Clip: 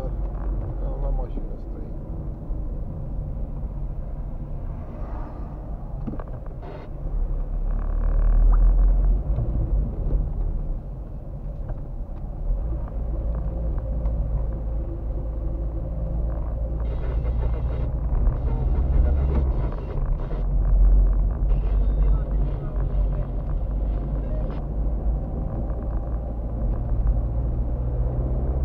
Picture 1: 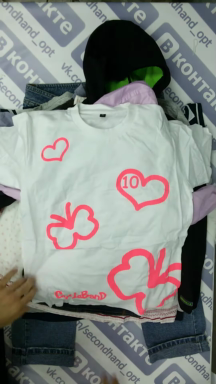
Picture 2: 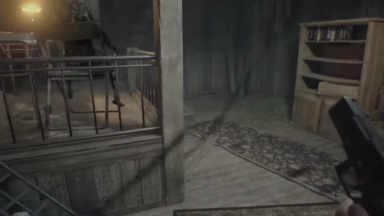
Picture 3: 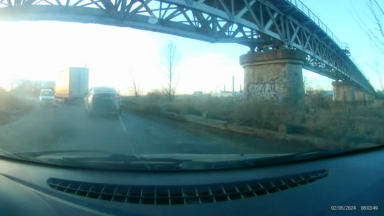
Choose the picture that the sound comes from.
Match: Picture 3